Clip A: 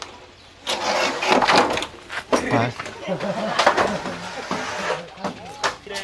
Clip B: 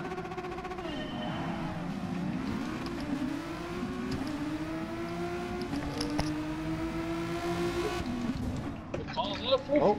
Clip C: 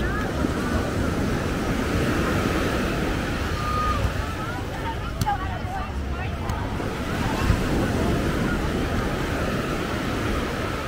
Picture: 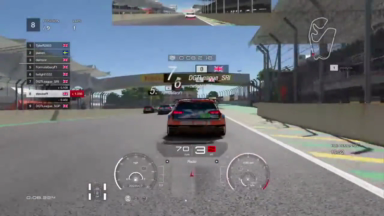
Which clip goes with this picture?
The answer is B